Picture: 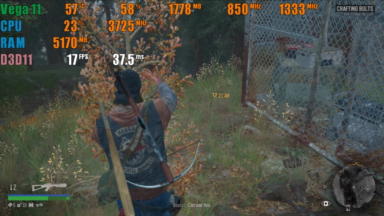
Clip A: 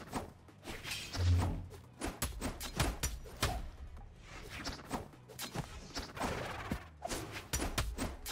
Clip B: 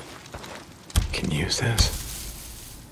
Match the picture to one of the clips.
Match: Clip B